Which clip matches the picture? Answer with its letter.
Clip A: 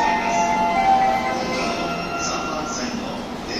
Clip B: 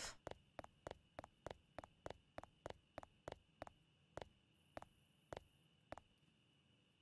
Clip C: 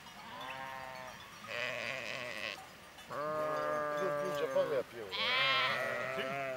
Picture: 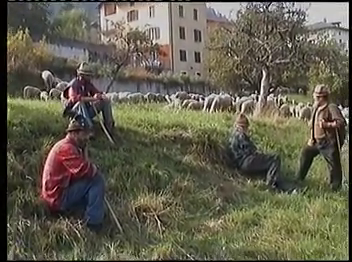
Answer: C